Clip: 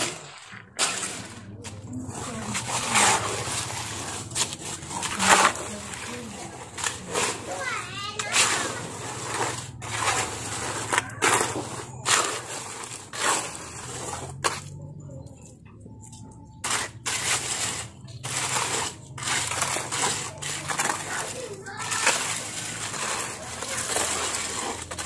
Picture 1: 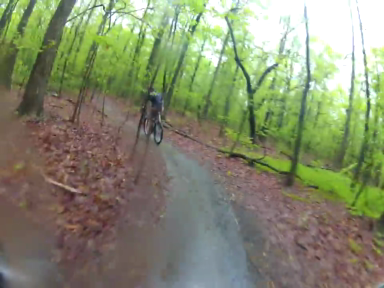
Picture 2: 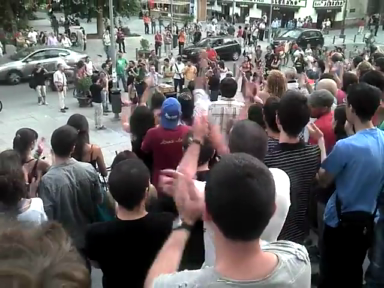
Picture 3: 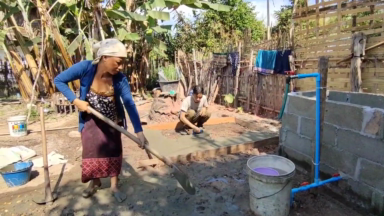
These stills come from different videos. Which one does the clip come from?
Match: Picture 3